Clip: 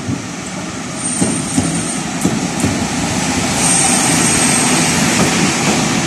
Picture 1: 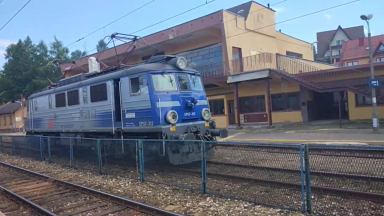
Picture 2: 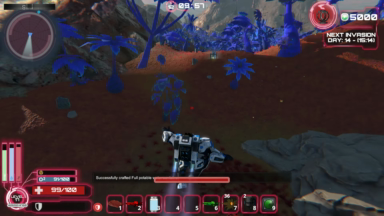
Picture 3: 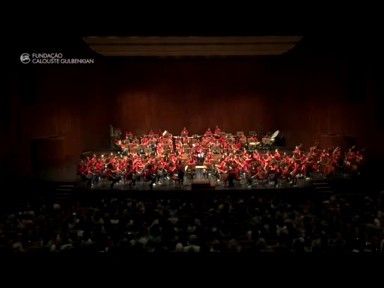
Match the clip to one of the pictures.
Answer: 1